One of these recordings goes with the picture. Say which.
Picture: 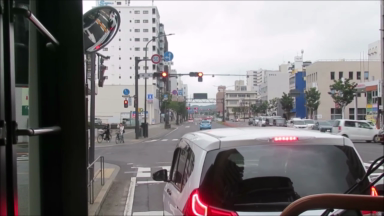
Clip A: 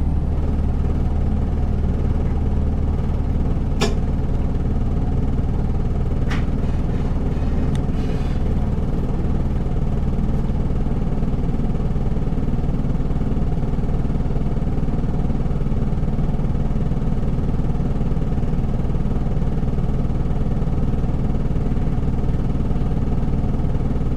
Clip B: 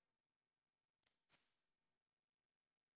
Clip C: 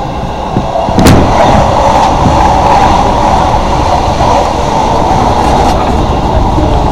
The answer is A